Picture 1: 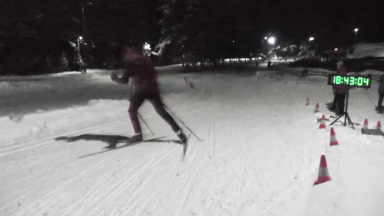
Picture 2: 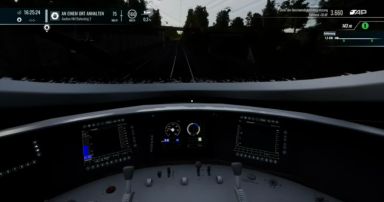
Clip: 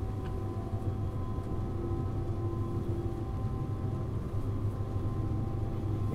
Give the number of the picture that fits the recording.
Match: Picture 2